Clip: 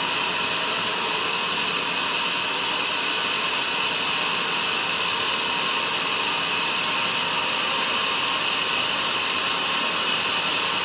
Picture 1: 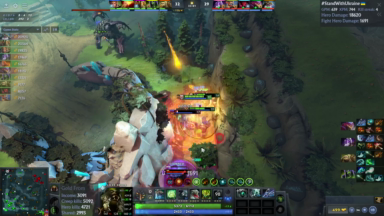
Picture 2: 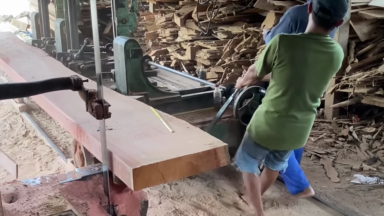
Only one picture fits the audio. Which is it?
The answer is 2